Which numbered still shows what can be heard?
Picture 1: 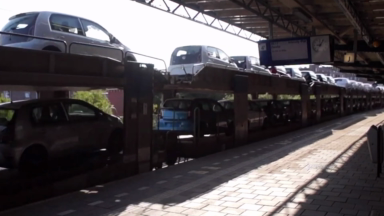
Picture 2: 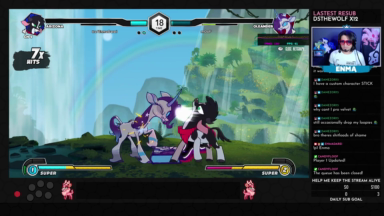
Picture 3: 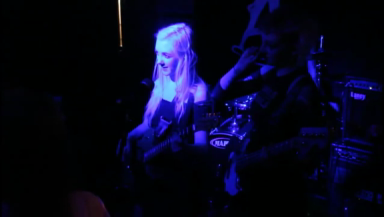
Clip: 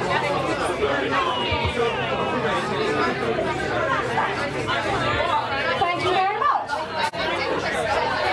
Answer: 3